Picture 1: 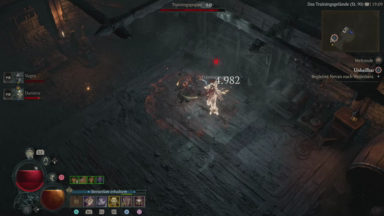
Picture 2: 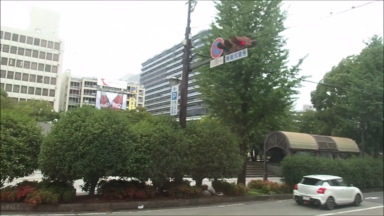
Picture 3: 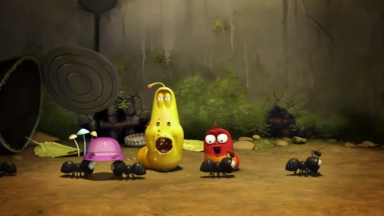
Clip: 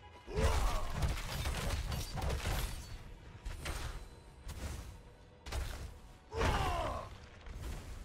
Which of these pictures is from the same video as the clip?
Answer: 1